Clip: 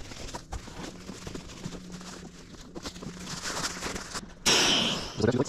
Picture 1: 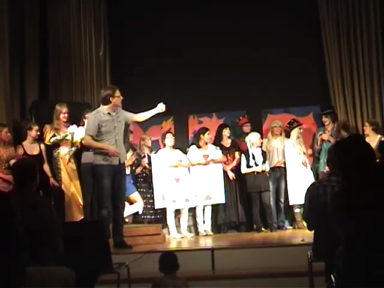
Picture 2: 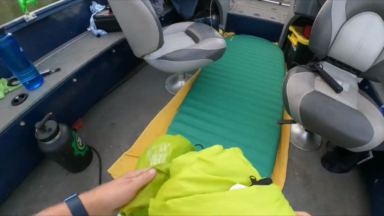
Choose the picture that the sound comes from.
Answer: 2